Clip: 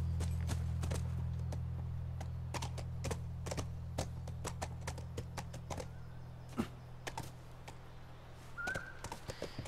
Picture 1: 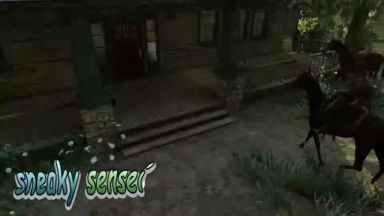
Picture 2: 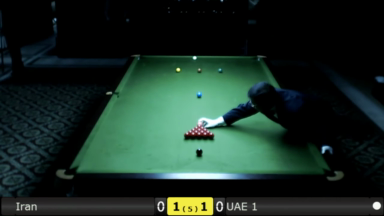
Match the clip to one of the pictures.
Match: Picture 1